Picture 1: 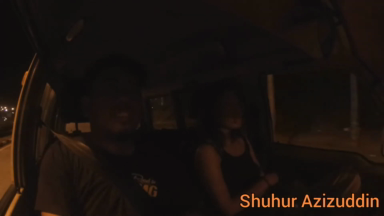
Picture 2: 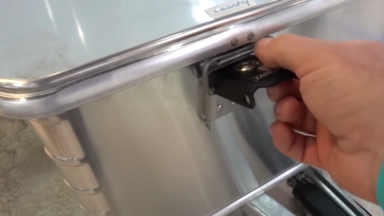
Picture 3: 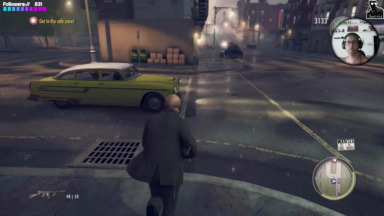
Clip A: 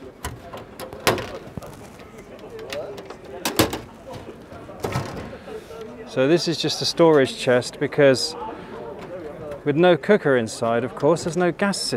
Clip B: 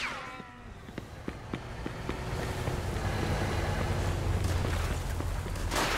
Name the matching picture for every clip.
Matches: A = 2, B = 3